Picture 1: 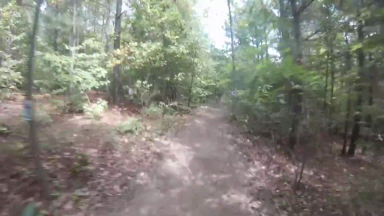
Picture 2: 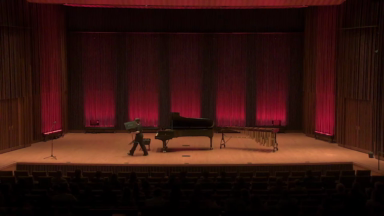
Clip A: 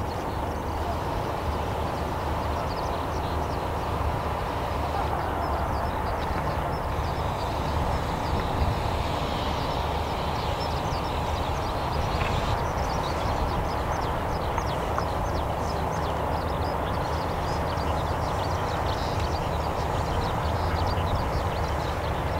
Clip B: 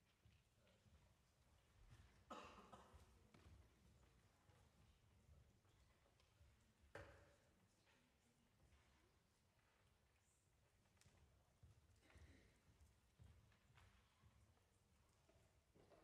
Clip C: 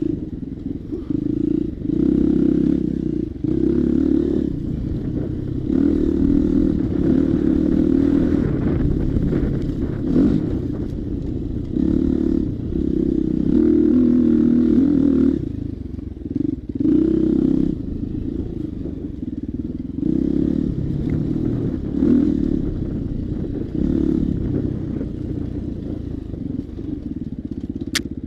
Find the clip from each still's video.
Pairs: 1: C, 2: B